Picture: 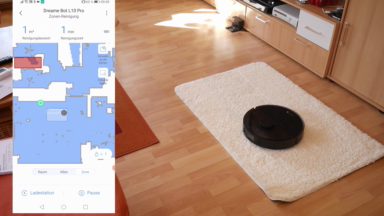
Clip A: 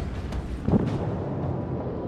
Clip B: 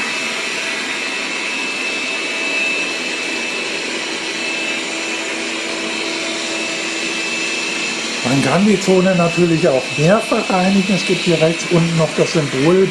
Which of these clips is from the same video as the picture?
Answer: B